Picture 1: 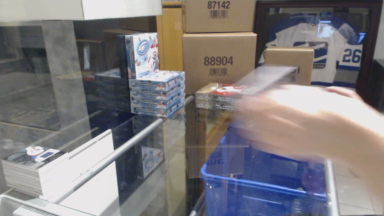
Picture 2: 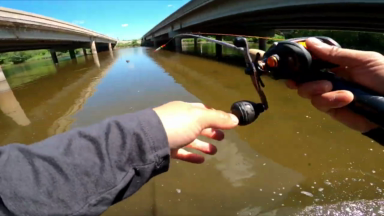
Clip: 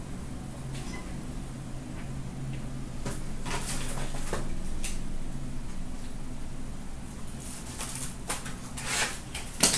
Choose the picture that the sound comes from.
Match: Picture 1